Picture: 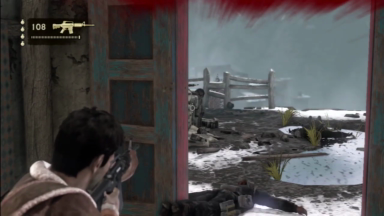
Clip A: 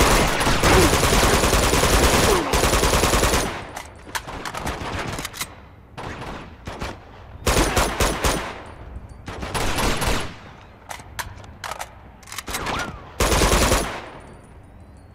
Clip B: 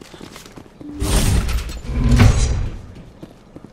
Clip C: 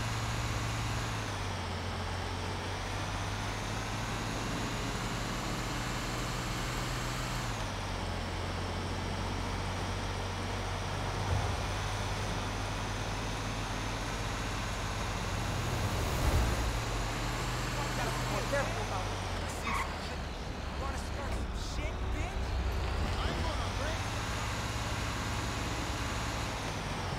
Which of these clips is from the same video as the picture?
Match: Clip A